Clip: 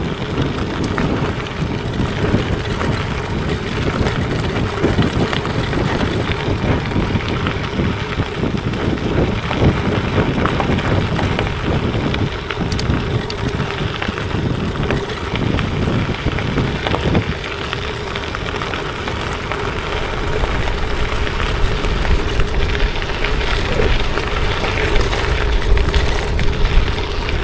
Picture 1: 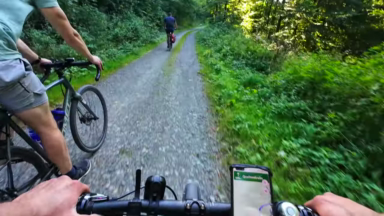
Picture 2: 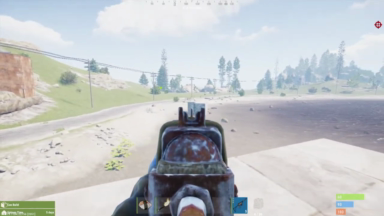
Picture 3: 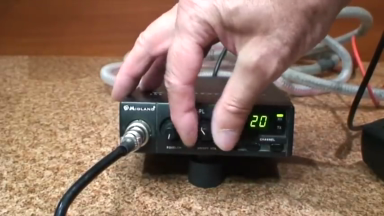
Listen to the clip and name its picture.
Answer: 1